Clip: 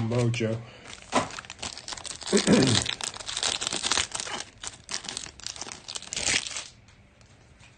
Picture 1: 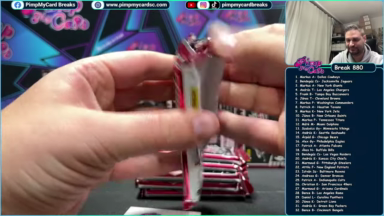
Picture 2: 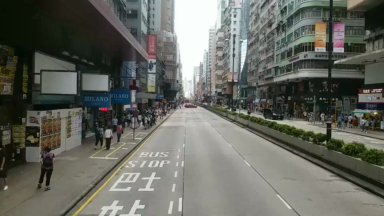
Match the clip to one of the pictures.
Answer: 1